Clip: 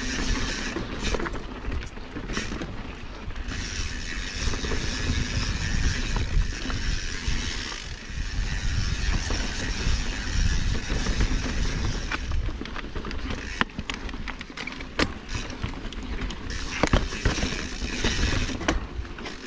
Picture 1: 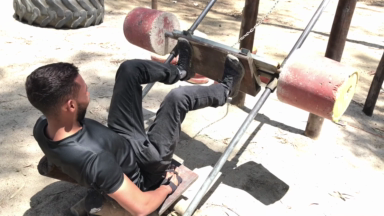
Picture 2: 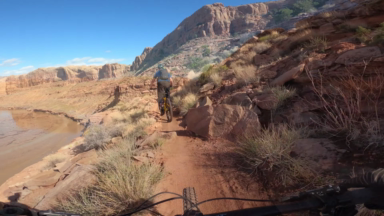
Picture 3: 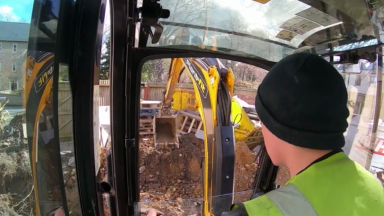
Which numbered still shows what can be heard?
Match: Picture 2